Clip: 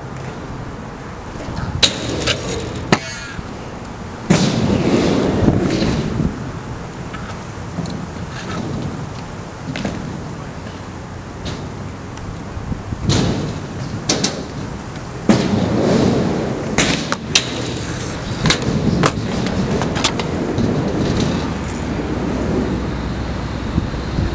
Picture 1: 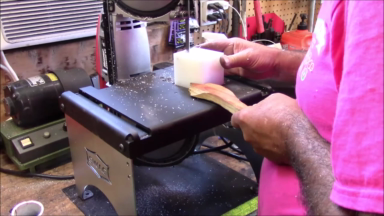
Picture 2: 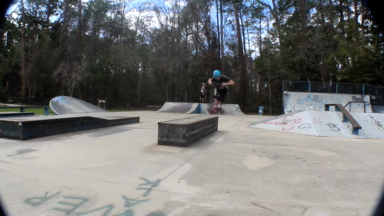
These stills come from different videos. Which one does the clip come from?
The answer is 2